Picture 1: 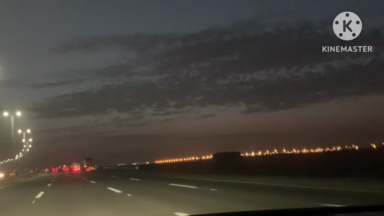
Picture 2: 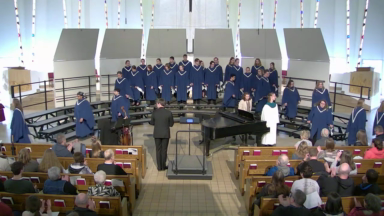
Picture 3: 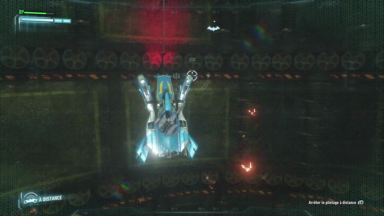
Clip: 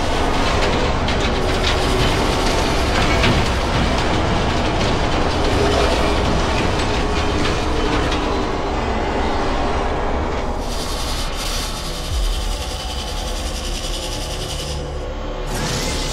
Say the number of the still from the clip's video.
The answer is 3